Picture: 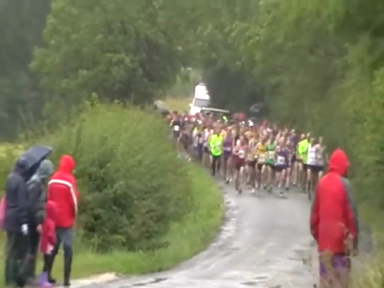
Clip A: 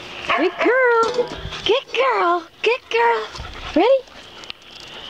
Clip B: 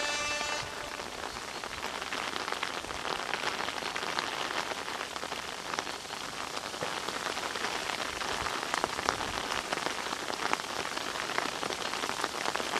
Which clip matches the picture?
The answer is B